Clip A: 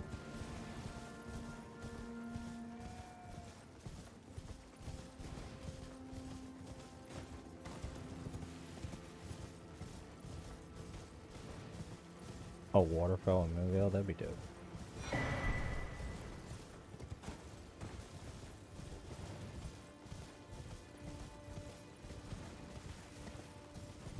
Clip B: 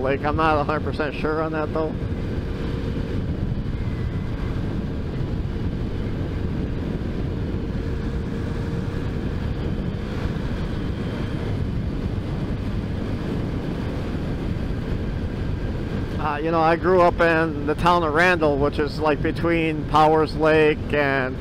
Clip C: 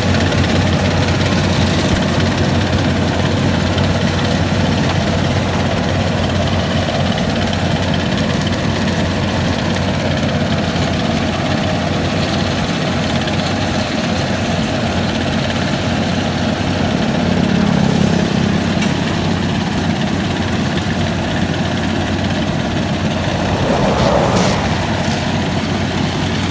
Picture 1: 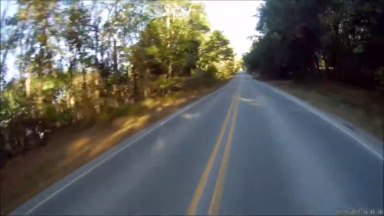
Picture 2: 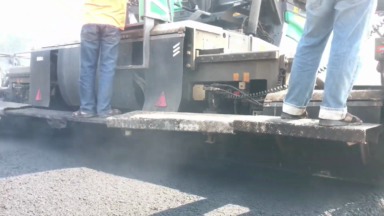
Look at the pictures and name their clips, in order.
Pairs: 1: B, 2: C